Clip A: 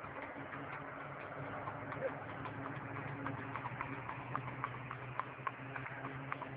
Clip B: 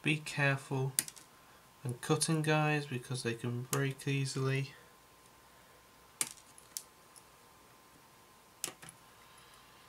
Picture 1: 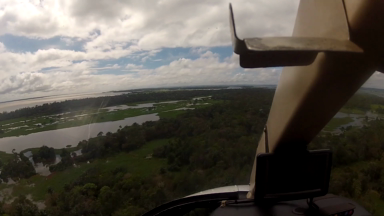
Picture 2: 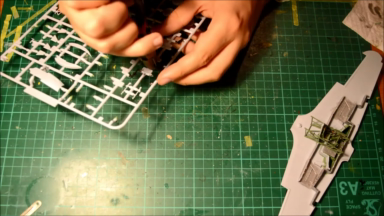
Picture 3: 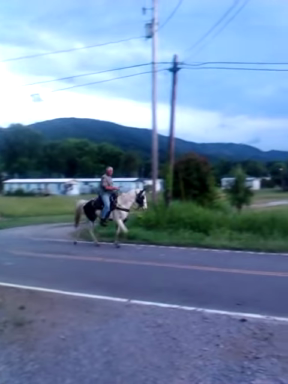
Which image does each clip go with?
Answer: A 3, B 2